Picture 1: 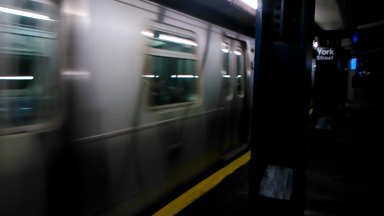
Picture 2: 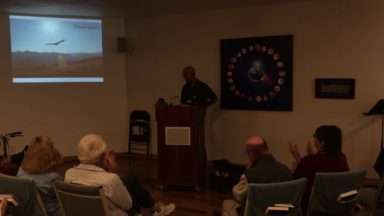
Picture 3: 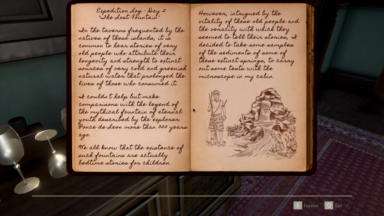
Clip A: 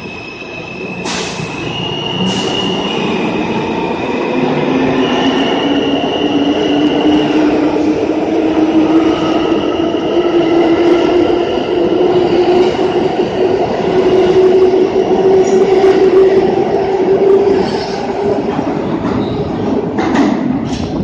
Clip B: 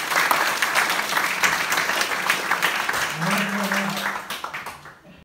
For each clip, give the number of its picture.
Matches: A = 1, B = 2